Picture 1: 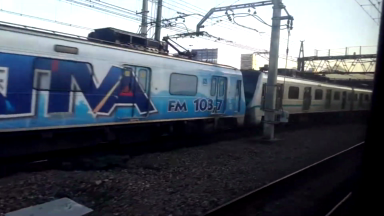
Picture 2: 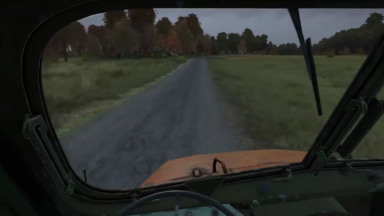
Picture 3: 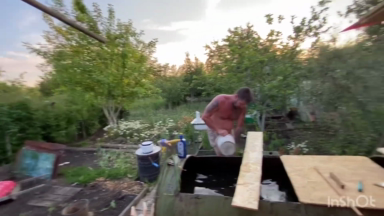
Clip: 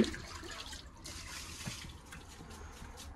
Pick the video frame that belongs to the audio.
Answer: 3